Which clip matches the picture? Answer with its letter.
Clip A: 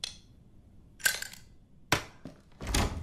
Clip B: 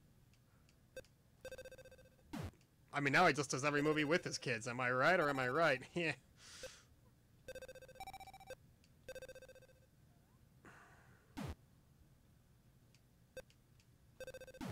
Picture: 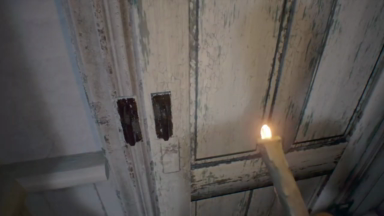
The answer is A